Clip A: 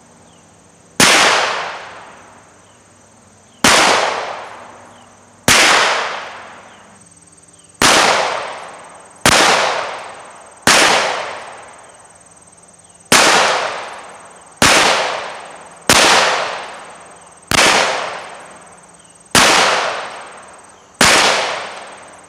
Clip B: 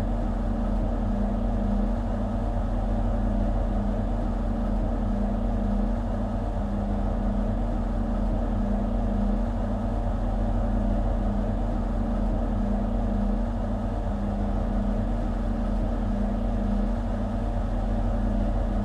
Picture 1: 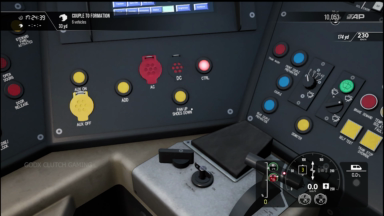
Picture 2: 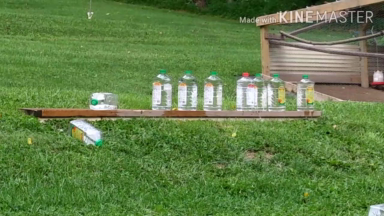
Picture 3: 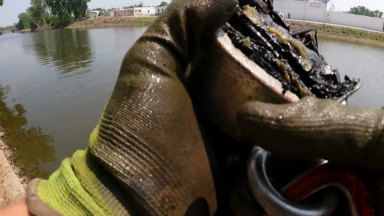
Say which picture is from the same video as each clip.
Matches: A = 2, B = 1